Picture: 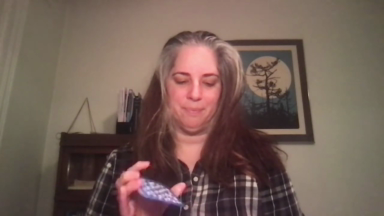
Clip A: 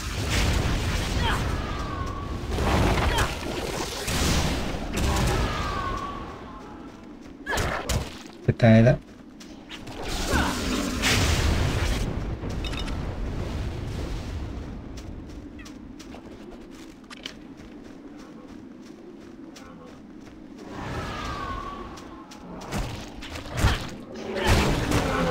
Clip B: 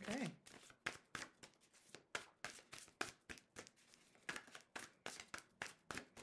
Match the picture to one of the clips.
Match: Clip B